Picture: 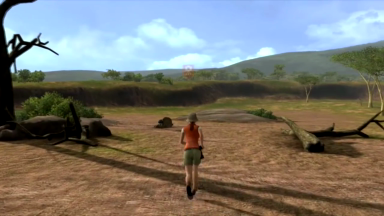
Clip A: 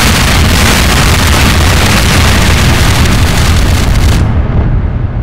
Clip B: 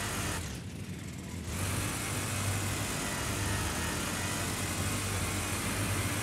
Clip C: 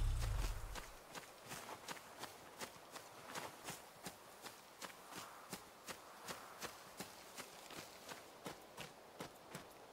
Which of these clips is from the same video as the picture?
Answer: C